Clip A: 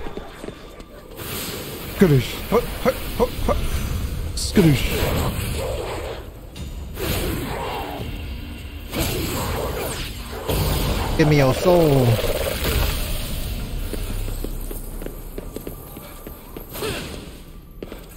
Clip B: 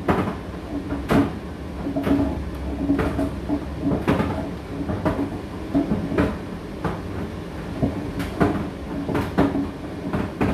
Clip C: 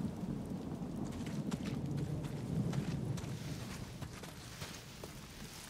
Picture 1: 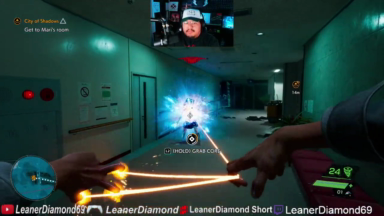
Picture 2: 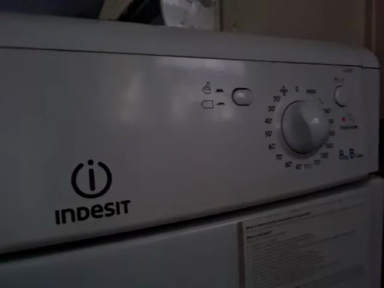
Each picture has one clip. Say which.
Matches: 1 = A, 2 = B